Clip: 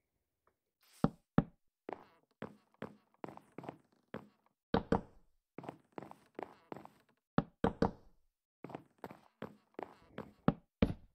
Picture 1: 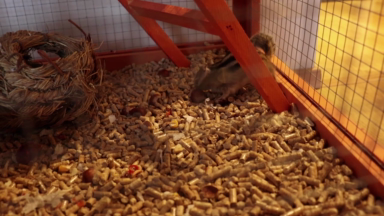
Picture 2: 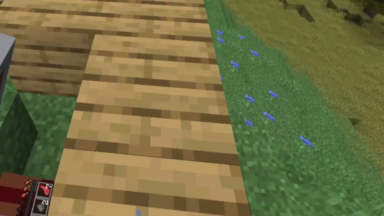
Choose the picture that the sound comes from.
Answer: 2